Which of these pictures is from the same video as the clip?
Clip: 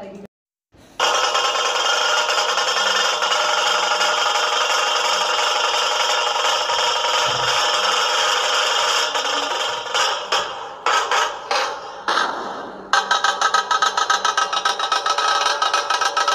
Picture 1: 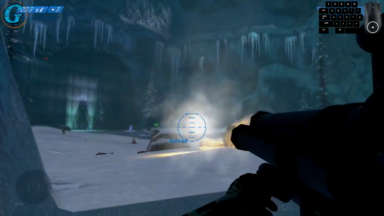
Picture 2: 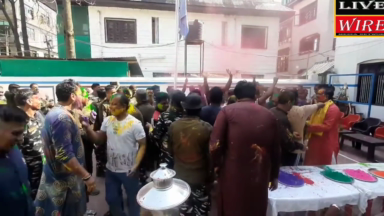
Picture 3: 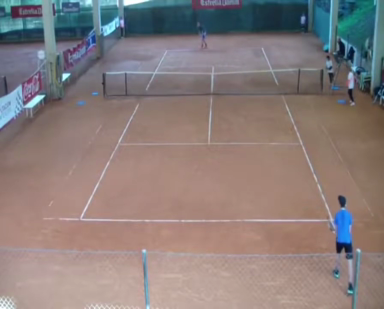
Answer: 2